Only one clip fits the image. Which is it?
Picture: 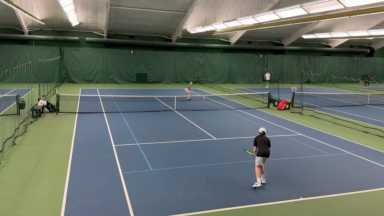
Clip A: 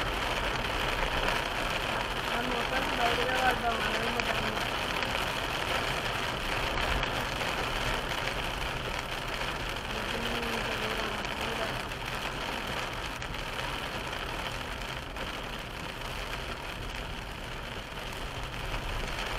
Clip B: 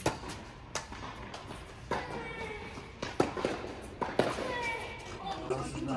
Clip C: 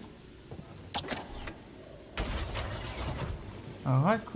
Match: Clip B